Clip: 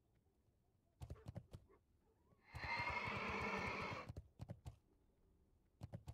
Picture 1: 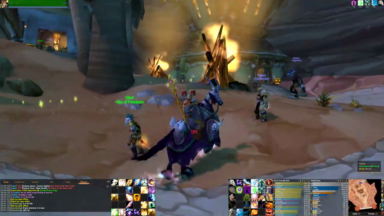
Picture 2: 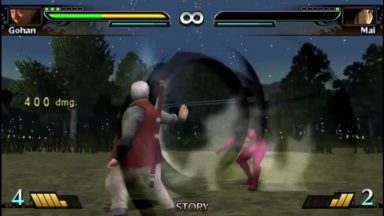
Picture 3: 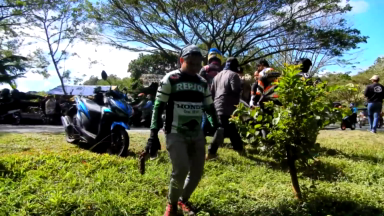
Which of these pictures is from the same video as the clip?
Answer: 1